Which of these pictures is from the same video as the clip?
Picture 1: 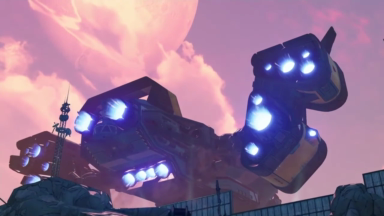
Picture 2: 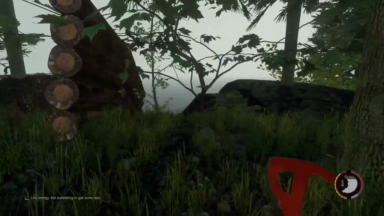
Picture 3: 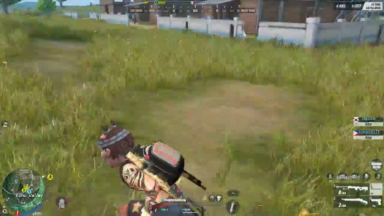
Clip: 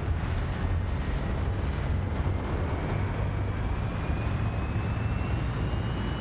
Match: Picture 1